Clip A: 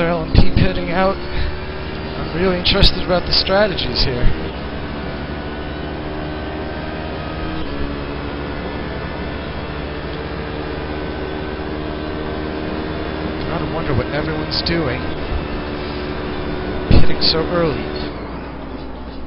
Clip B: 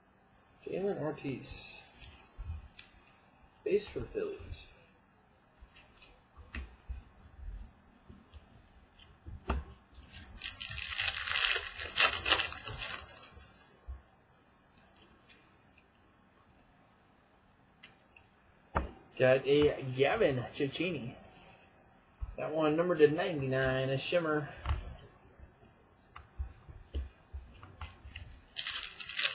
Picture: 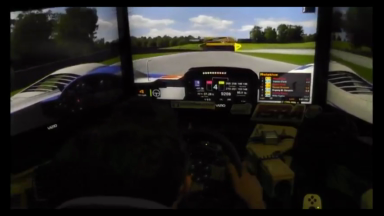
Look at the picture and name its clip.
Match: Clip A